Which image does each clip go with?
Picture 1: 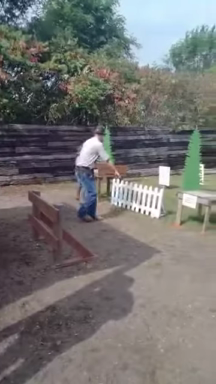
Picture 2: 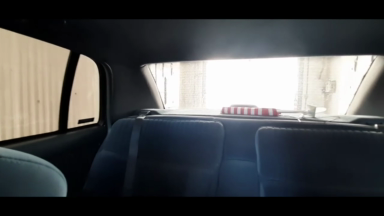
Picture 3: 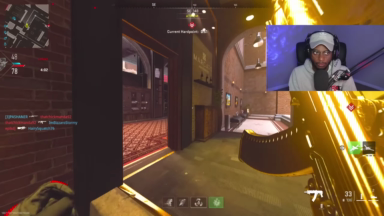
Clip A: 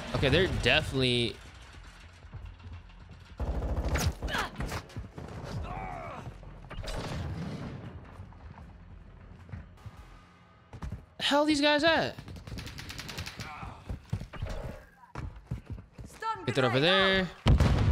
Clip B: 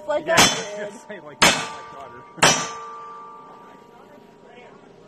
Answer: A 3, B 1